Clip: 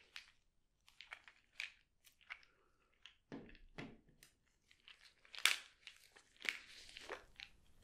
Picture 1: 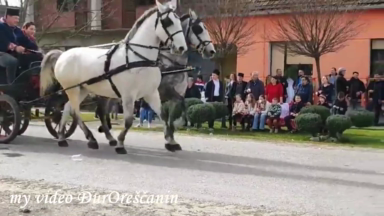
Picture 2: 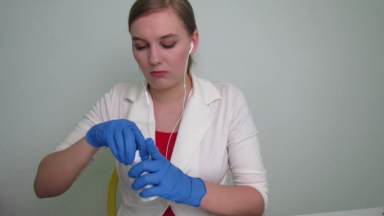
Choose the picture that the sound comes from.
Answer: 2